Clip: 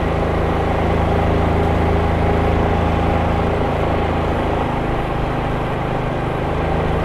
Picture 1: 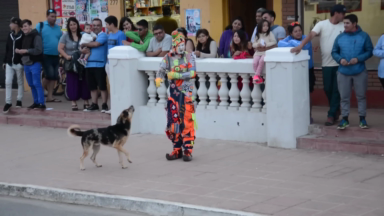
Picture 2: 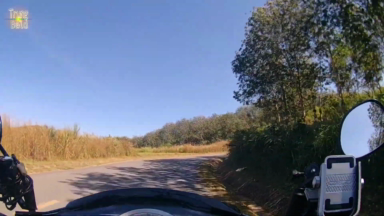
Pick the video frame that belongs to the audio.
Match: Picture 2